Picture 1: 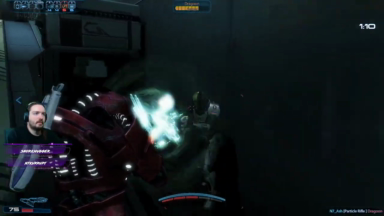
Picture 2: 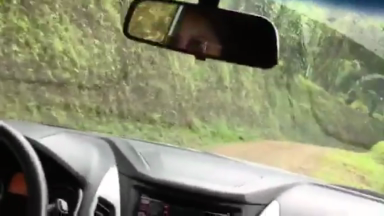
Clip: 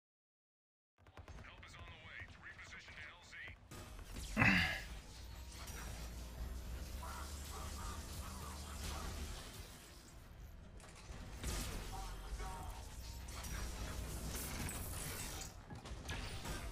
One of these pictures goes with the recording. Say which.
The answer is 1